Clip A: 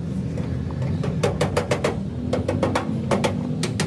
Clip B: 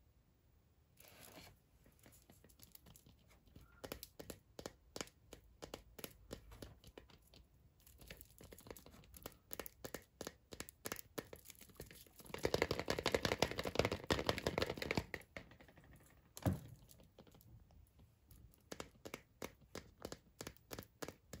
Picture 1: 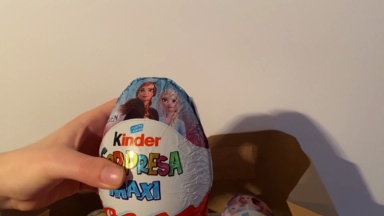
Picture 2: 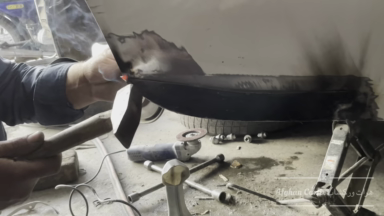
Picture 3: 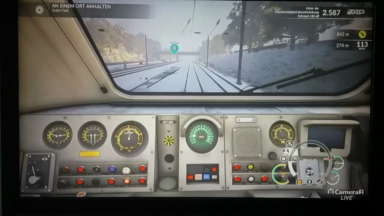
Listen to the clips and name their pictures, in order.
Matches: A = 2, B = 1